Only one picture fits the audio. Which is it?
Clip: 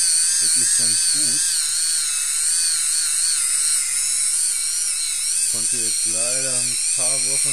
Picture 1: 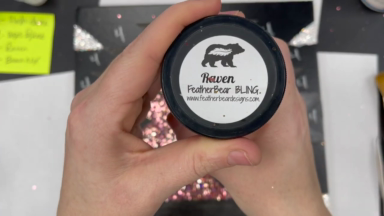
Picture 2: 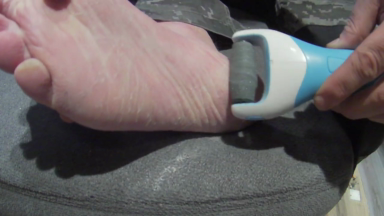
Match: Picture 2